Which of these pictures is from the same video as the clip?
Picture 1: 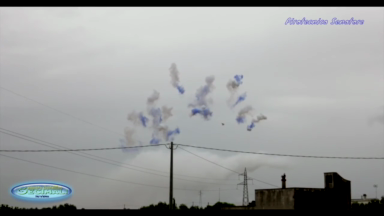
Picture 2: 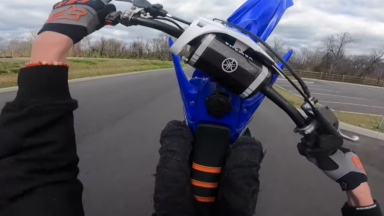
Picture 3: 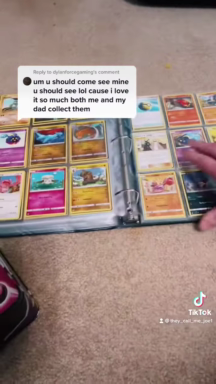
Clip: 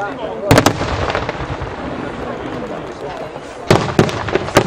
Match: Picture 1